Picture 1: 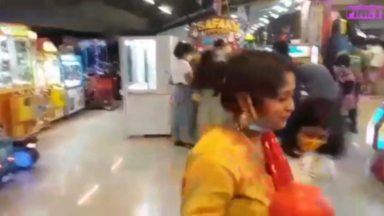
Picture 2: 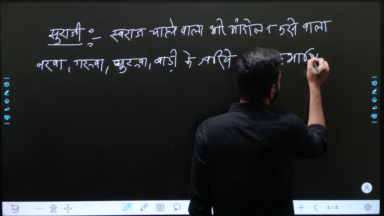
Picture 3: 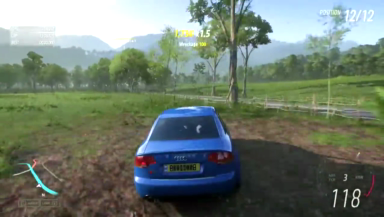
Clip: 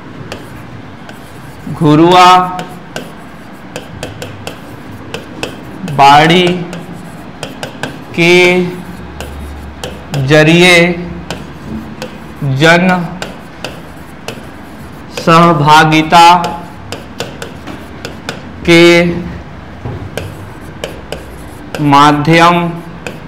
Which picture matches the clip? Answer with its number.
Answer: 2